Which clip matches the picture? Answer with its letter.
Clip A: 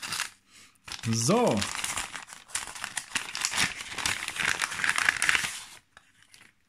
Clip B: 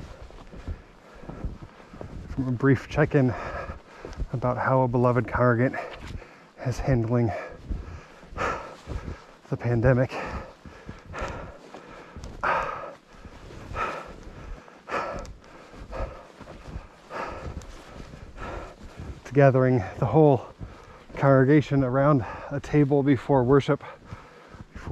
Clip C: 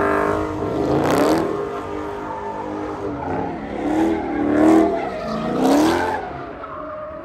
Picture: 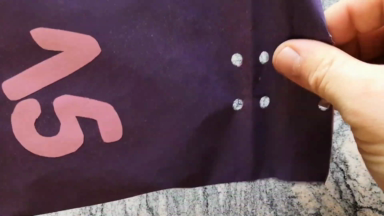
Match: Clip A